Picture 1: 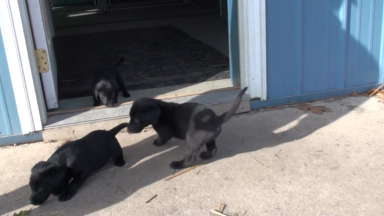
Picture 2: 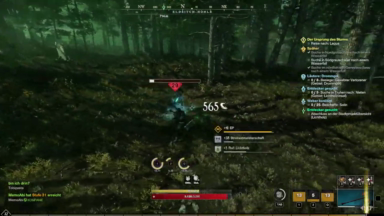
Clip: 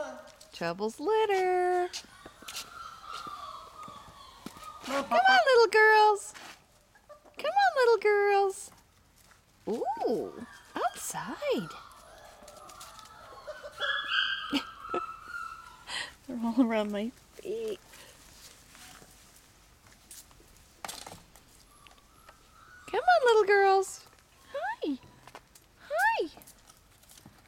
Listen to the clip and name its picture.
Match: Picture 1